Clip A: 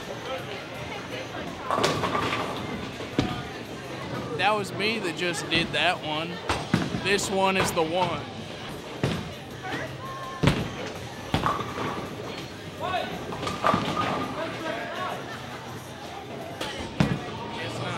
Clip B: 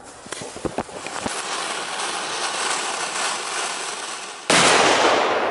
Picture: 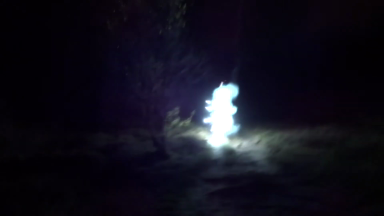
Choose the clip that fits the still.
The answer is B